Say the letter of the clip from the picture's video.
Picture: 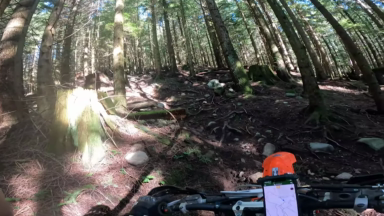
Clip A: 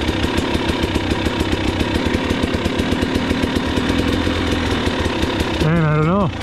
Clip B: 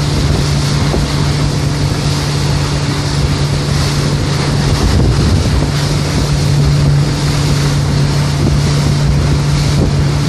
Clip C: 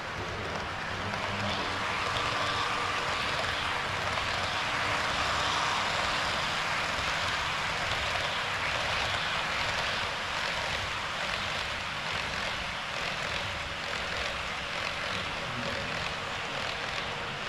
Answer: A